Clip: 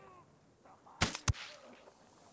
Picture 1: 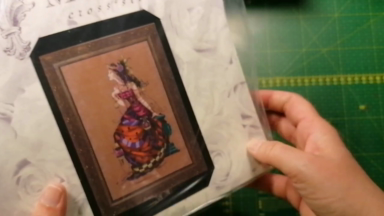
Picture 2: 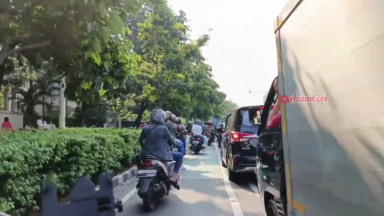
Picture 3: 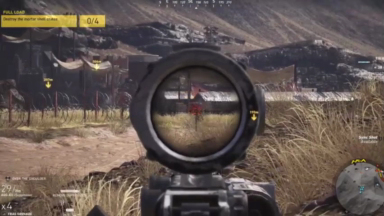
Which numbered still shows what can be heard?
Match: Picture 3